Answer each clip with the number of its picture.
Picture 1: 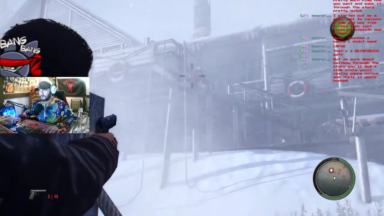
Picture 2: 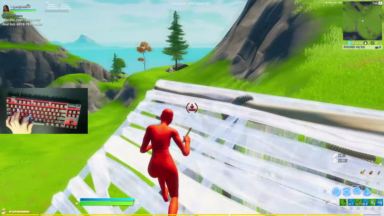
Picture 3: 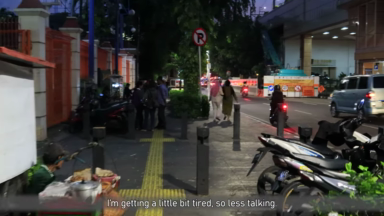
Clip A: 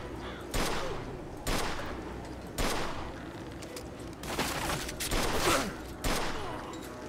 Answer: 1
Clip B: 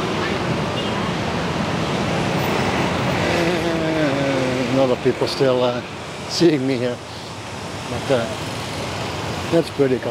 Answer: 3